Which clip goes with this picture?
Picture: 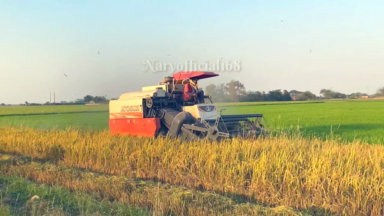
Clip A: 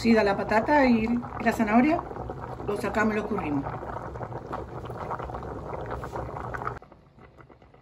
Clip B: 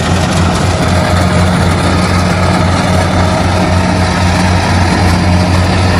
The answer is B